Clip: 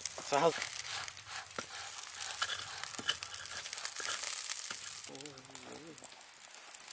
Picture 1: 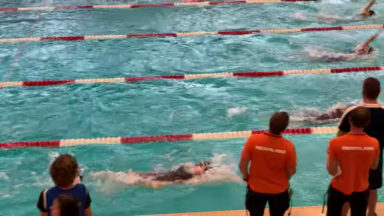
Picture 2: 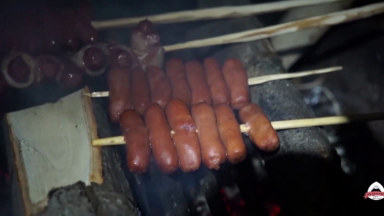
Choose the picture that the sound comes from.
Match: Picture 2